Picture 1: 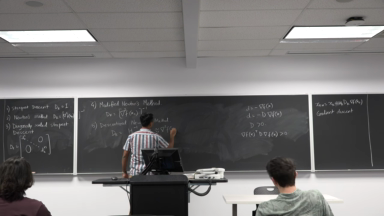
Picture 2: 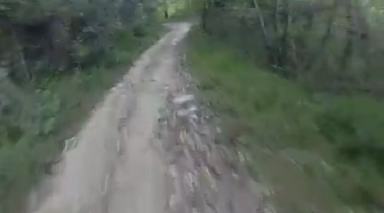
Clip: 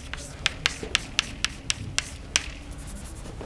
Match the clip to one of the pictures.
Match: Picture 1